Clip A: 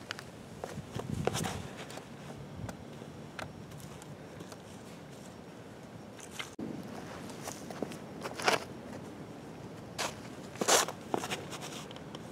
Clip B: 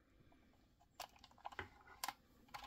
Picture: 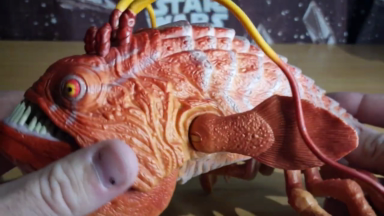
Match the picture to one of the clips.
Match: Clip B